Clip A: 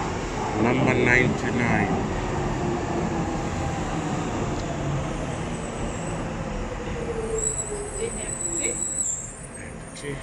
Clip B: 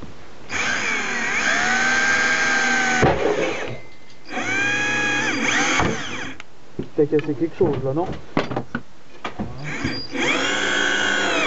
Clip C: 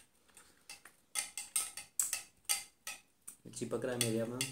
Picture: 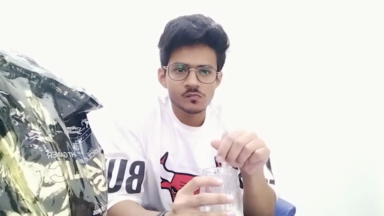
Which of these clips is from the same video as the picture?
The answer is C